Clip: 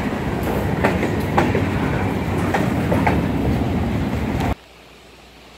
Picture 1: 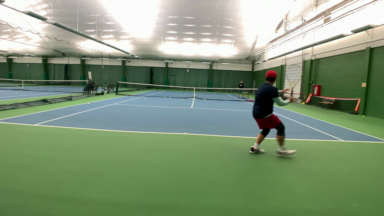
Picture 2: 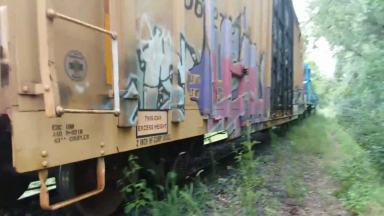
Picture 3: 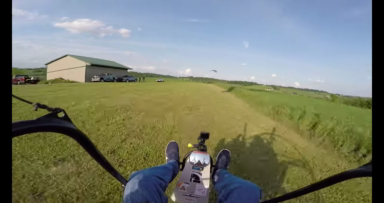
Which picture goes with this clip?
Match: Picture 2